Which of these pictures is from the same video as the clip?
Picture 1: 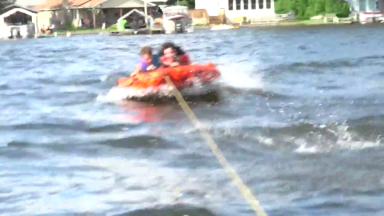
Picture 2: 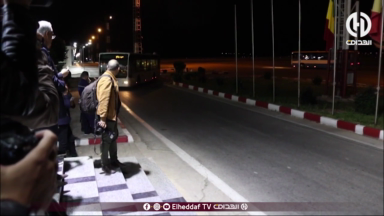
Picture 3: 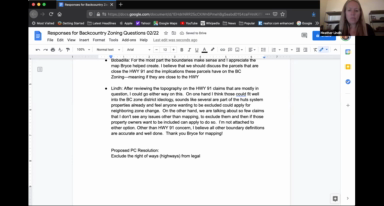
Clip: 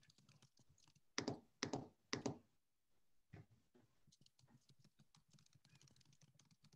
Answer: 3